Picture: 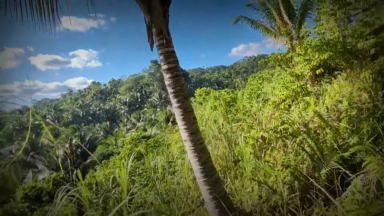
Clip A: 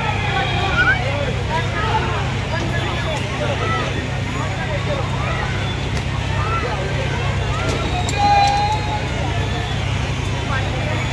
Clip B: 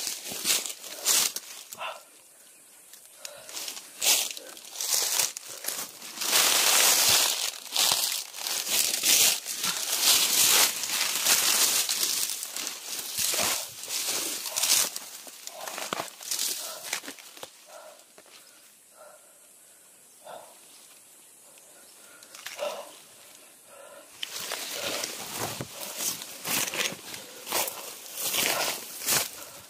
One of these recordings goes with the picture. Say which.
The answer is B